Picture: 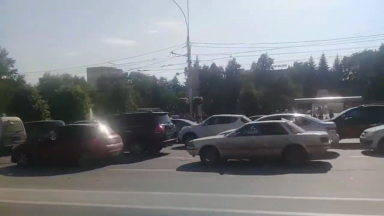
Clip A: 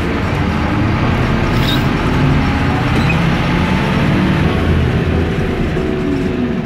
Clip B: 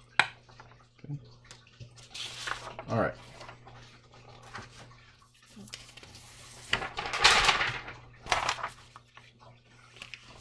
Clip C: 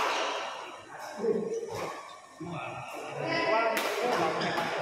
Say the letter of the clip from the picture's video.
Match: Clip A